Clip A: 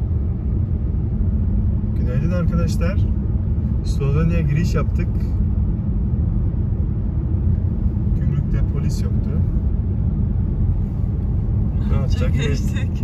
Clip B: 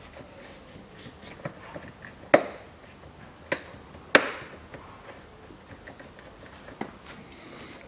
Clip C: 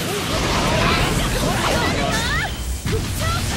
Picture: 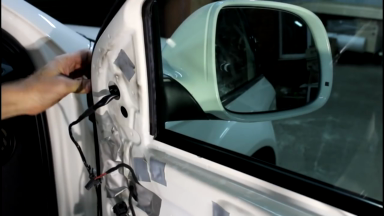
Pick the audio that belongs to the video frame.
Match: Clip B